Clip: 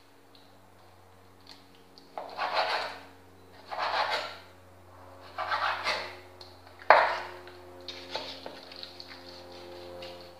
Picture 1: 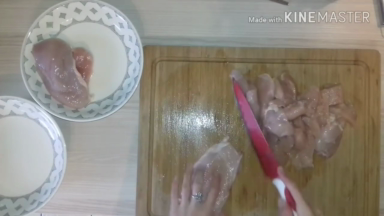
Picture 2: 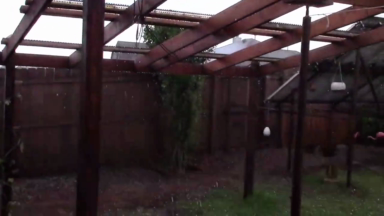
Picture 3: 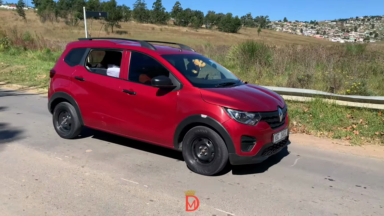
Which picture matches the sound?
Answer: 1